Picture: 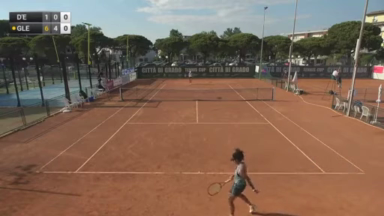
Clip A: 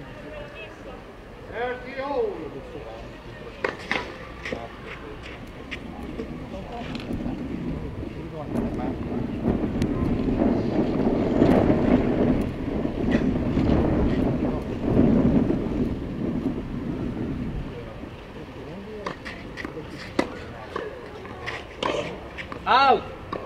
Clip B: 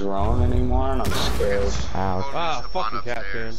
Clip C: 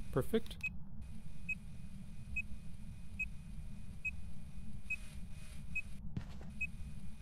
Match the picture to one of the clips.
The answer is A